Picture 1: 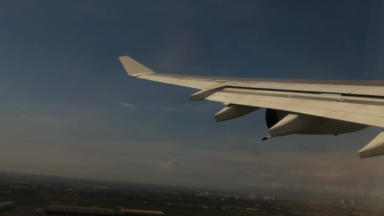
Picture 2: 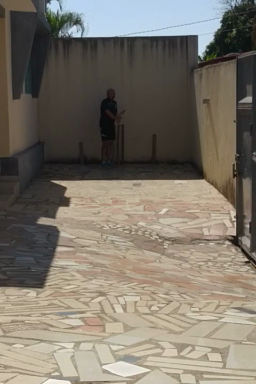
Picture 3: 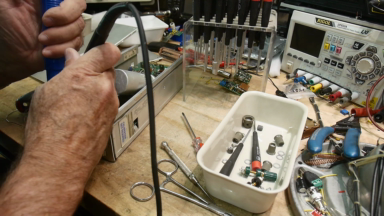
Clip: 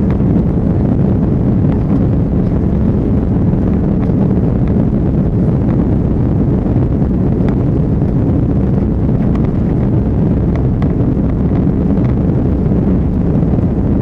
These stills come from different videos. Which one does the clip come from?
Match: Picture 1